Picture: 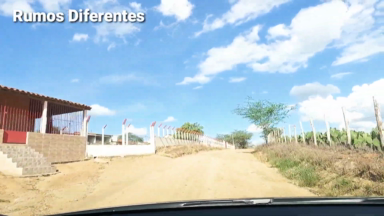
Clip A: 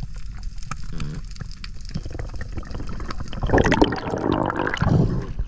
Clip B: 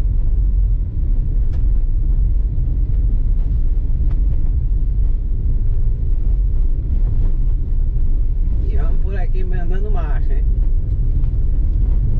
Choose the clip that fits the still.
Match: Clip B